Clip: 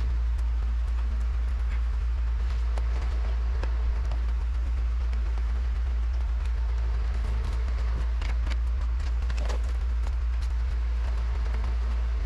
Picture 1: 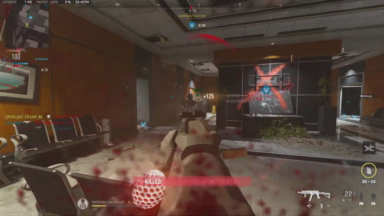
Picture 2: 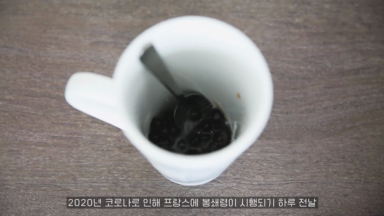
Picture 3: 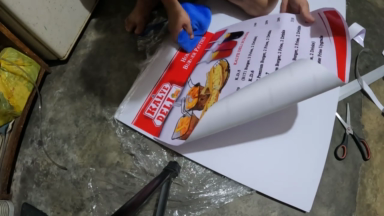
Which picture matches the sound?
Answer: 3